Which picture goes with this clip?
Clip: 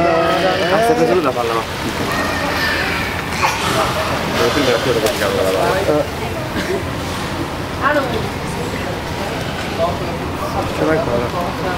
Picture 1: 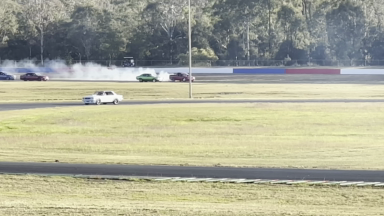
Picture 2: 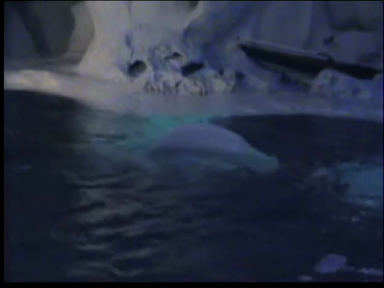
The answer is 2